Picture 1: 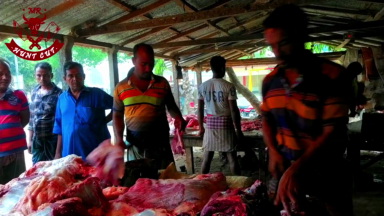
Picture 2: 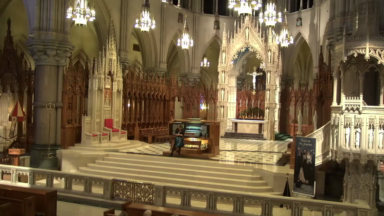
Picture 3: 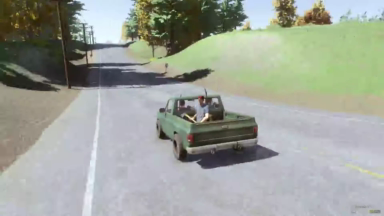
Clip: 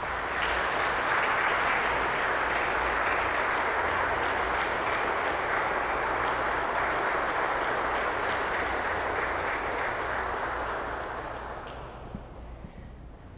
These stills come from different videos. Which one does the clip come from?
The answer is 2